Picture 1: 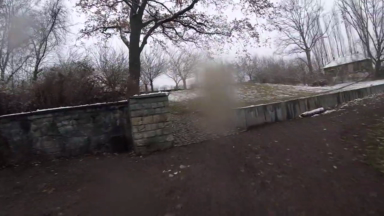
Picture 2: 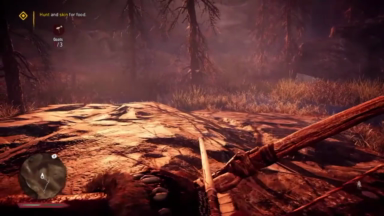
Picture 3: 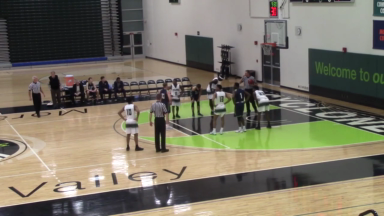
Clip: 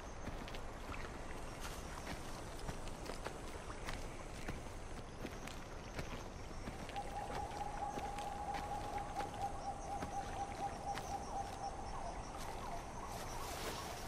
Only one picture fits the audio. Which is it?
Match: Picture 2